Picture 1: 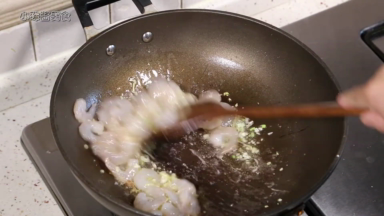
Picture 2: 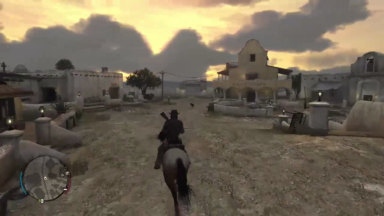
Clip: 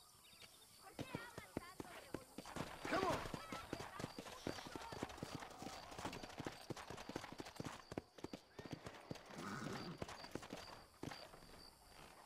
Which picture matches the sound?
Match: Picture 2